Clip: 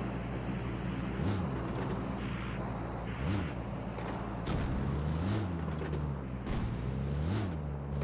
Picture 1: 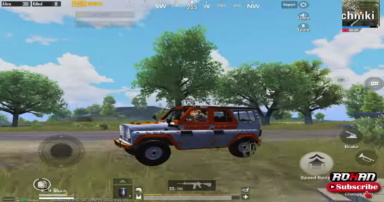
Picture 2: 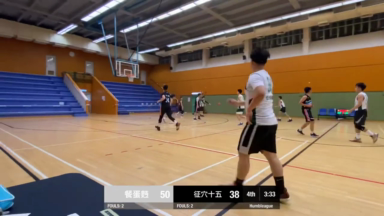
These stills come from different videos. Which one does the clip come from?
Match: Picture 1